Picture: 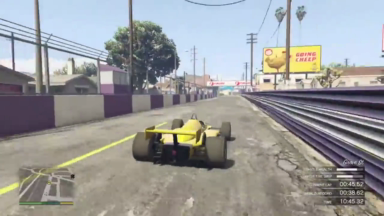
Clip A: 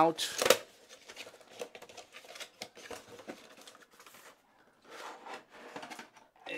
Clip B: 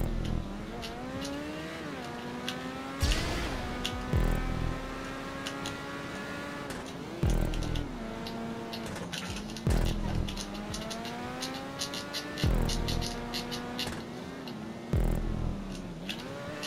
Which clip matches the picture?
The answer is B